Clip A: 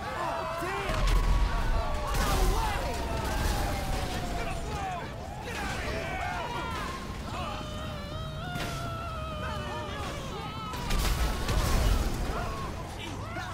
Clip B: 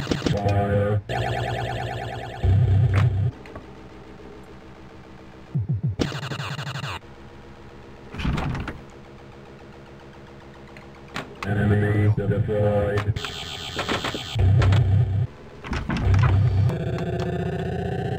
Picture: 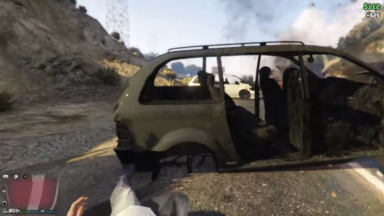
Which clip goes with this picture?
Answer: A